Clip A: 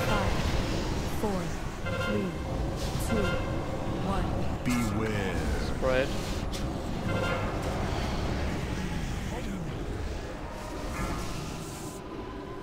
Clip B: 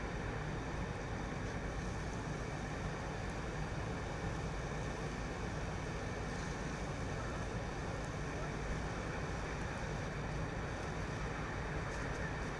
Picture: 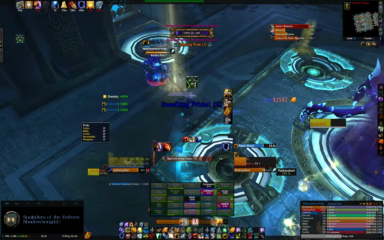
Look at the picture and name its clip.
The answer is A